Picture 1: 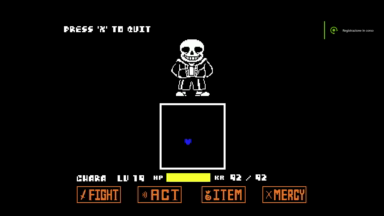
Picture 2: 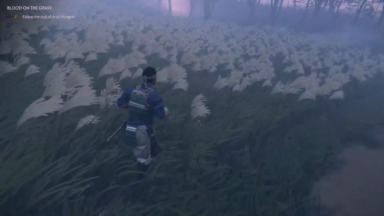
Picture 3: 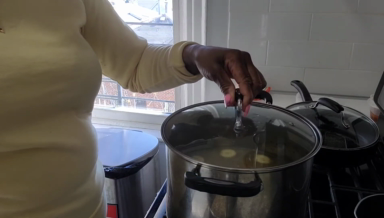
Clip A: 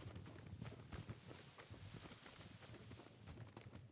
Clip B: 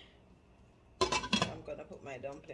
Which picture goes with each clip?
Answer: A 2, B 3